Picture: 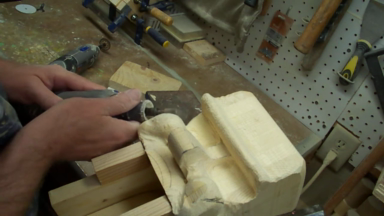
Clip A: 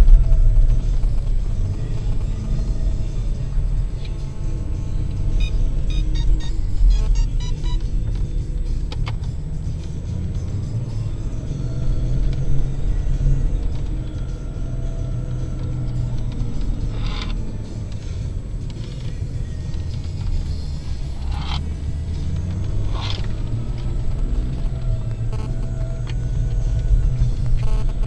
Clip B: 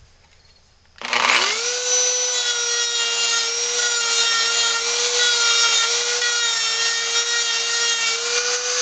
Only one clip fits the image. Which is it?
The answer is B